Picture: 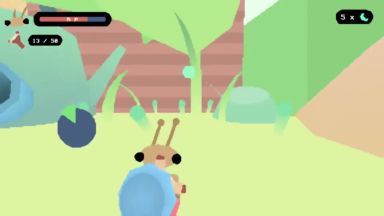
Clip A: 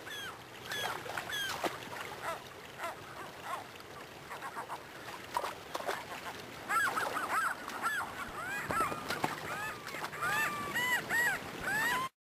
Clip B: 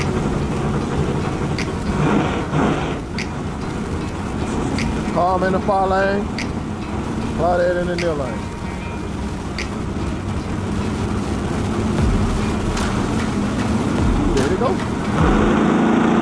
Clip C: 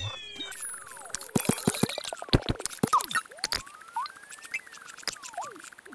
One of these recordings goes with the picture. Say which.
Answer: C